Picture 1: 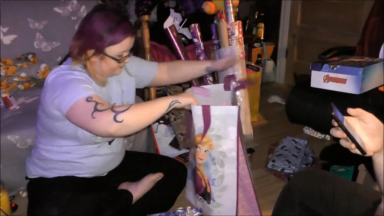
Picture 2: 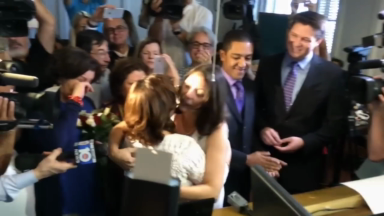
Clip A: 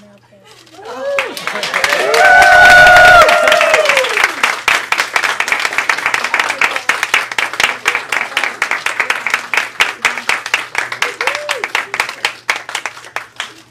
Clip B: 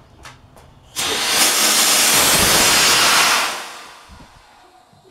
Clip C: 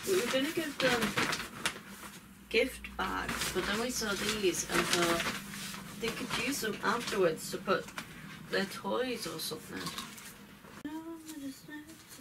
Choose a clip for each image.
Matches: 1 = C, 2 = A